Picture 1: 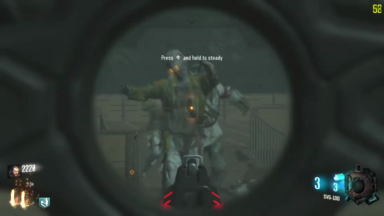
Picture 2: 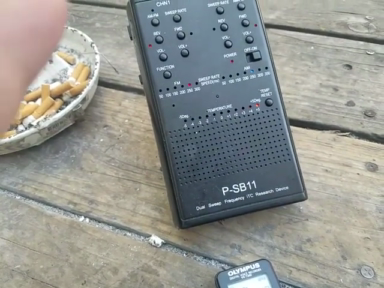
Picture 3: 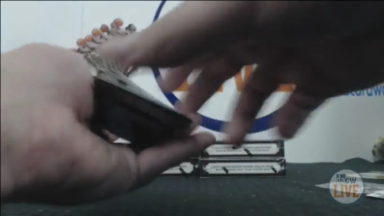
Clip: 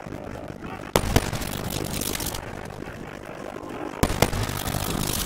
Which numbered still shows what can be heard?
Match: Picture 1